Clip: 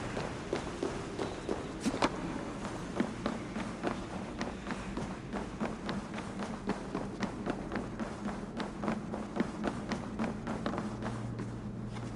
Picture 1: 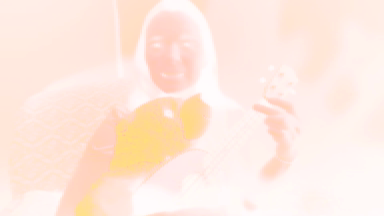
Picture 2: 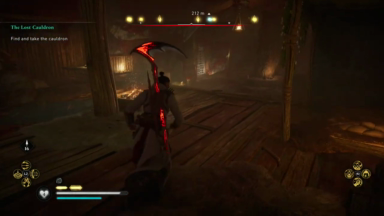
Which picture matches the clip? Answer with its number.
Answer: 2